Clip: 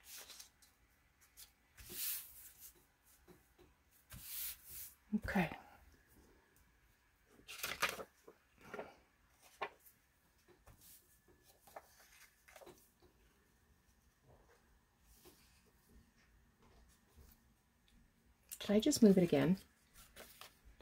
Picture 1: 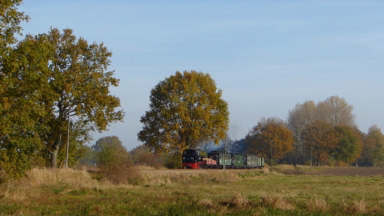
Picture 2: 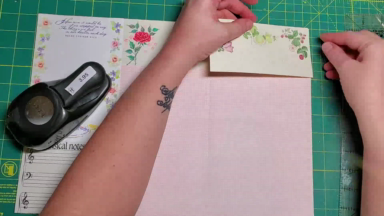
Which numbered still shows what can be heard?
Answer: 2